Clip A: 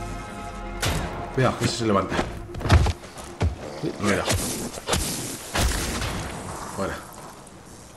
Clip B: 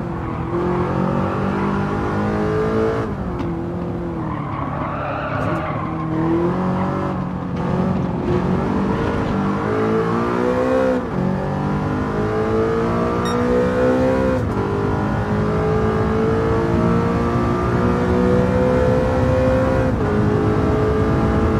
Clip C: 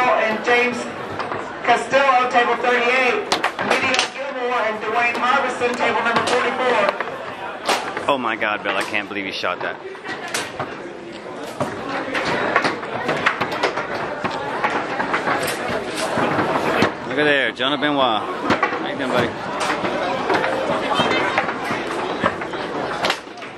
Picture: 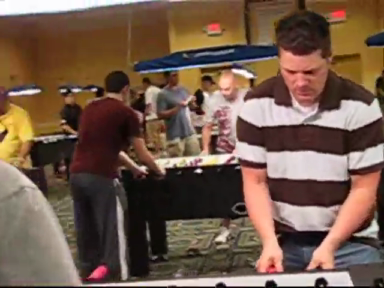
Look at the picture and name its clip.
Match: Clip C